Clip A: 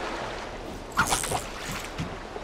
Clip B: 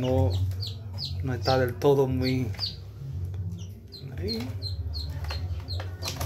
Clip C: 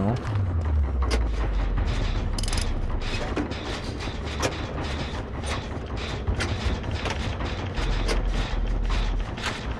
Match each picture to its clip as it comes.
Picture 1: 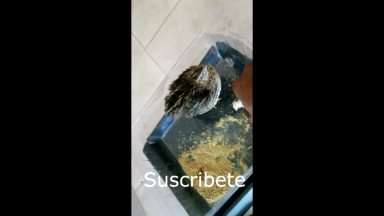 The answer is B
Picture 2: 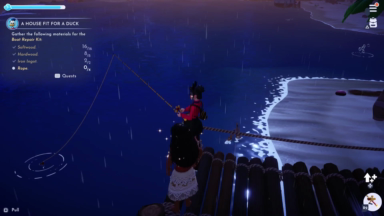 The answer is A